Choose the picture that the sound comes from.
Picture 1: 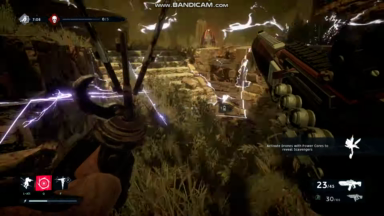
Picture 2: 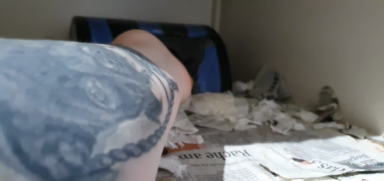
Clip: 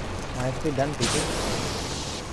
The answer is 1